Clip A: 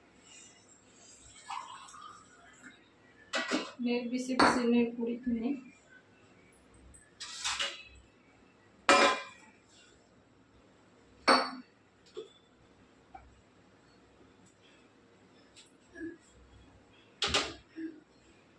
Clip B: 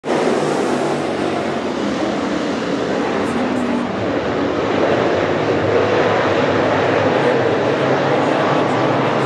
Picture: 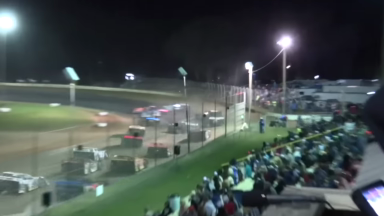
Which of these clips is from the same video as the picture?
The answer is B